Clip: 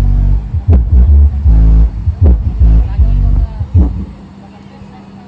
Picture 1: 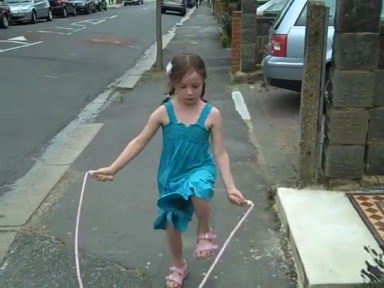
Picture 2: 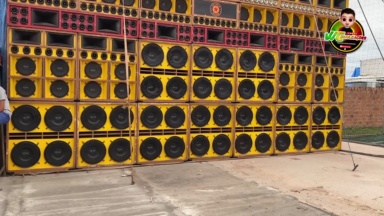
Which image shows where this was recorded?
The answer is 2